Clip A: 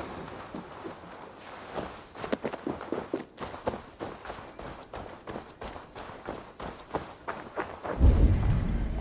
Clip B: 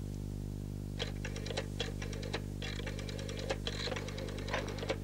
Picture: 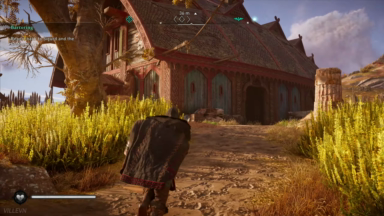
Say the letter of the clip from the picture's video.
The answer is A